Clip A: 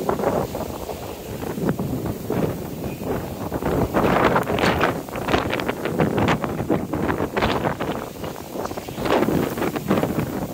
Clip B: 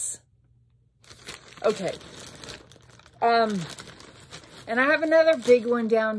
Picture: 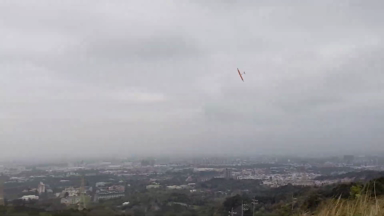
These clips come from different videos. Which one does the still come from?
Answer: A